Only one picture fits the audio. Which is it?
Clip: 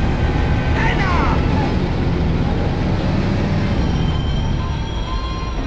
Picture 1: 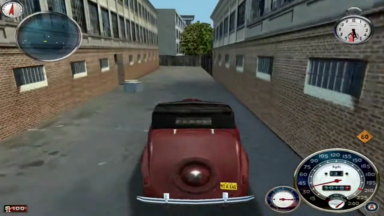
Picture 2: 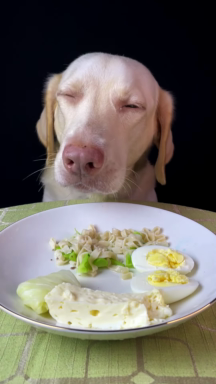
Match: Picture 1